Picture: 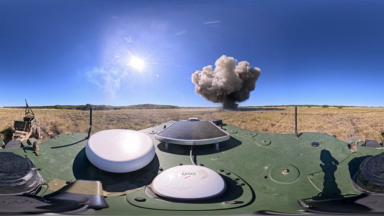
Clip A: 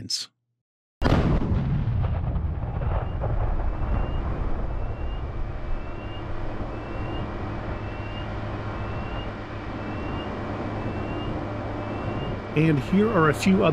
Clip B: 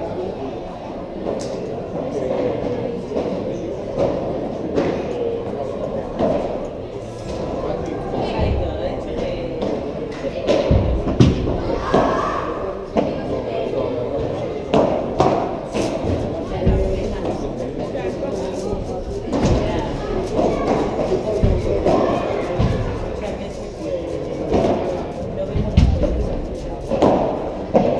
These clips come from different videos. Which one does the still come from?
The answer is A